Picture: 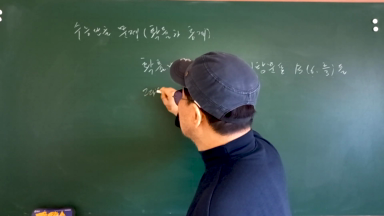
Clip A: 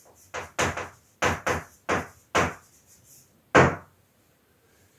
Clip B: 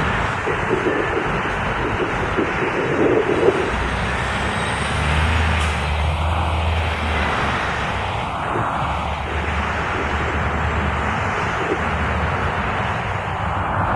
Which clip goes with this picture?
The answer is A